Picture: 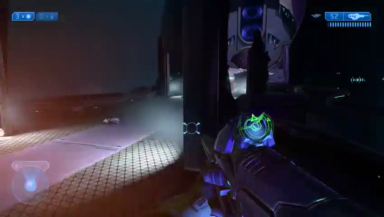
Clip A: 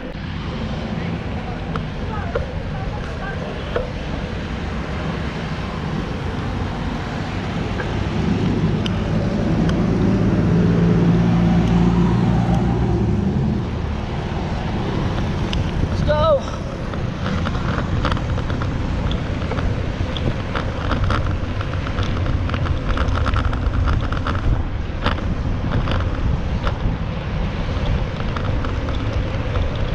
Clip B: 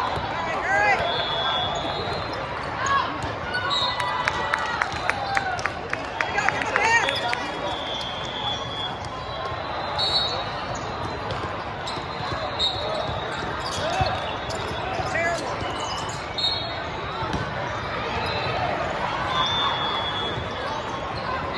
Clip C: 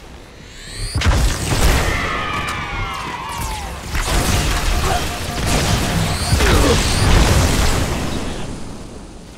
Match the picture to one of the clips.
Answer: C